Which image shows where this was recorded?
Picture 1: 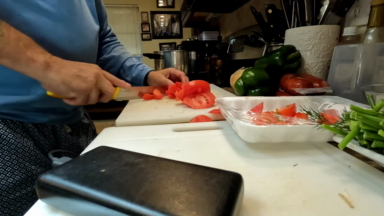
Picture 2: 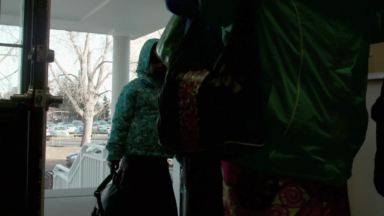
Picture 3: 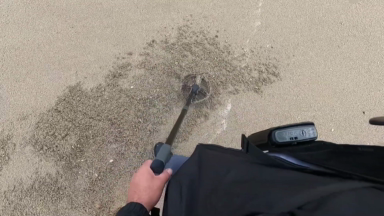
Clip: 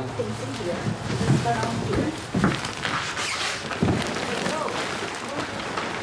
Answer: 2